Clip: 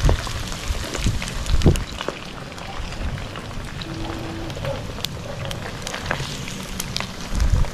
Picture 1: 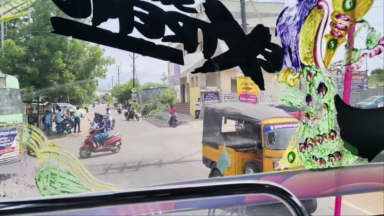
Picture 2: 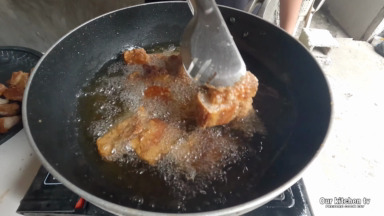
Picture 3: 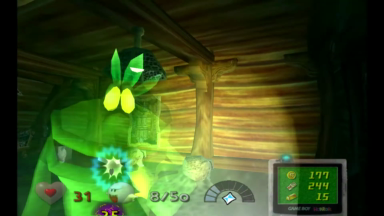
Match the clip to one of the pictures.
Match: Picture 2